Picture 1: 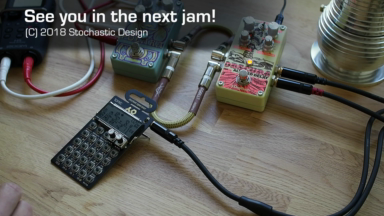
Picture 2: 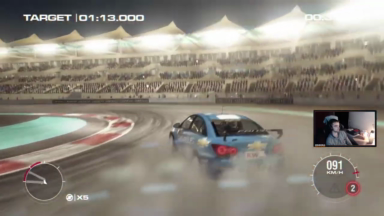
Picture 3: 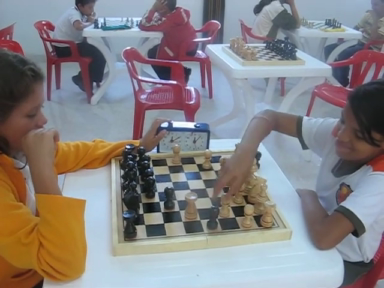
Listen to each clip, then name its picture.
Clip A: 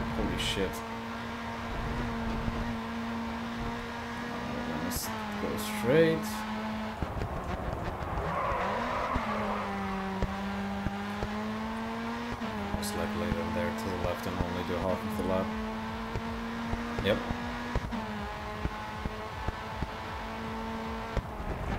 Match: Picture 2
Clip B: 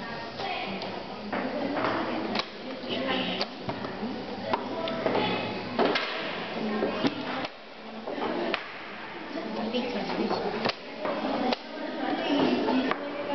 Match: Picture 3